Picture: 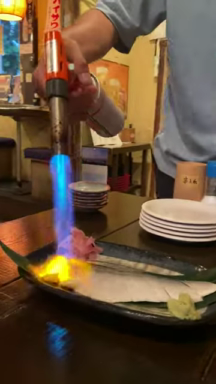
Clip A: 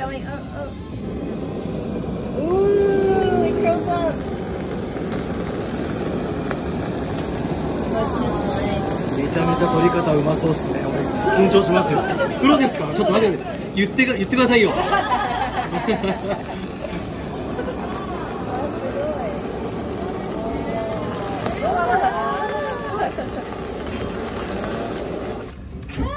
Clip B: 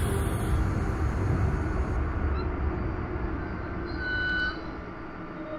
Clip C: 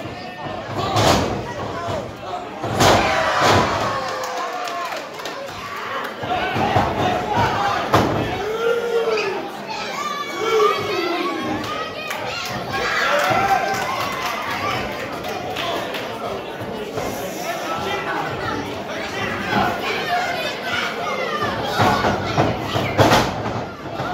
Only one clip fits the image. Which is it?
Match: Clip A